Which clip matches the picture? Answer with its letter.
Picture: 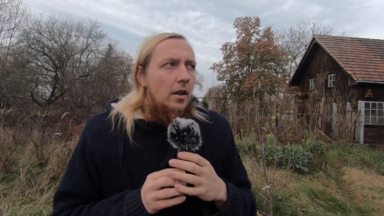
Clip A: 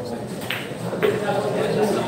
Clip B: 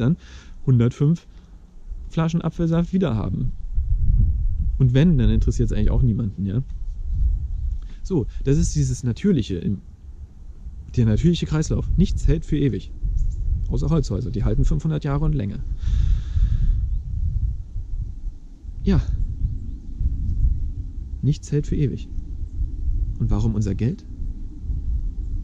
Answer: B